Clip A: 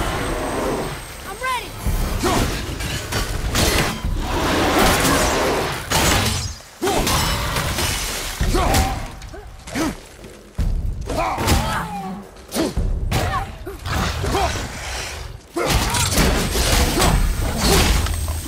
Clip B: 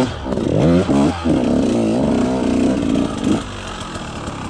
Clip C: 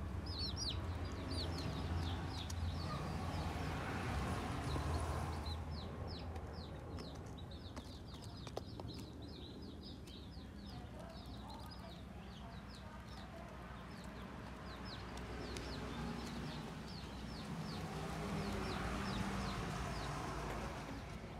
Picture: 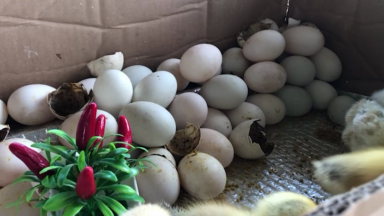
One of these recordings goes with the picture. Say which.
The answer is C